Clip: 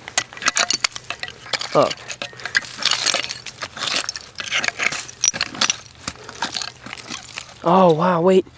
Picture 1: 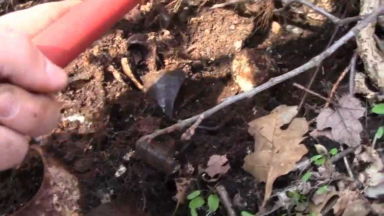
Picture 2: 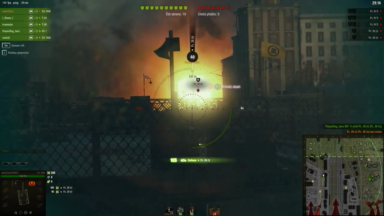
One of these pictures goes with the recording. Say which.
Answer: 1